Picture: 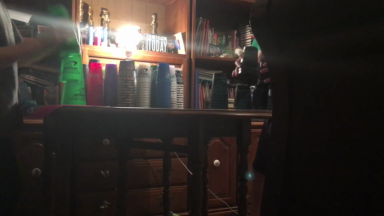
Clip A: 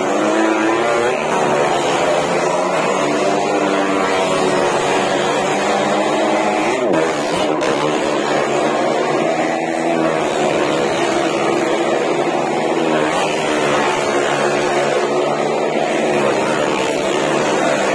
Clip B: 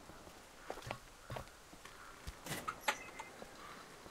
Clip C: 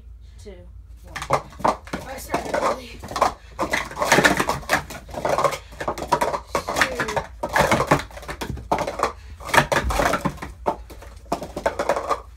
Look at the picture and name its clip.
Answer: C